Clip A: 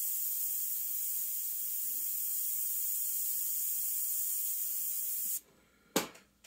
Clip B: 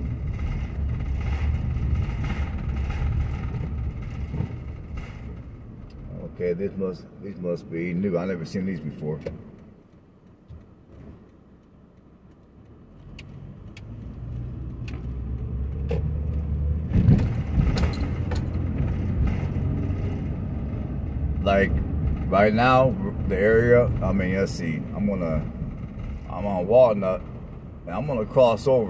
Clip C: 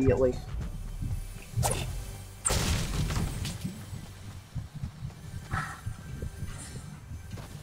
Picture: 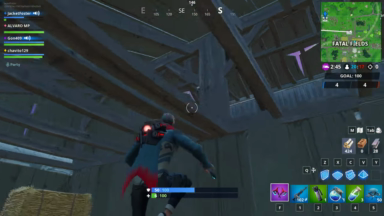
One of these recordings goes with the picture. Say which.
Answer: C